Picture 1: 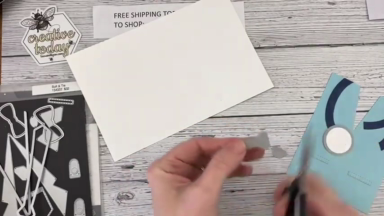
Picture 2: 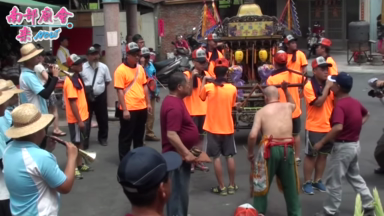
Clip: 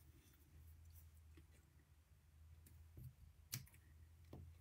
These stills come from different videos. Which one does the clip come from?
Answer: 1